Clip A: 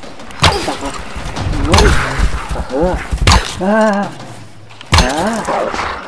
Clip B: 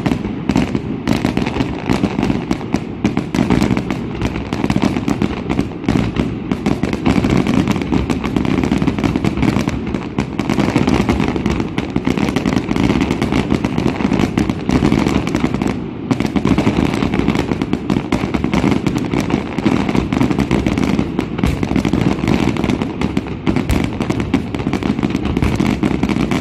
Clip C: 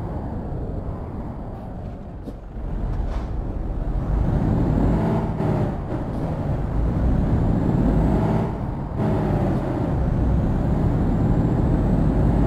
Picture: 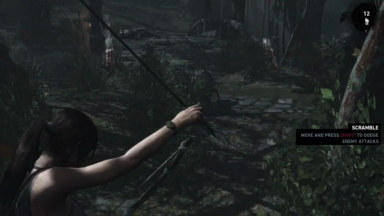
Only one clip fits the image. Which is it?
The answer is A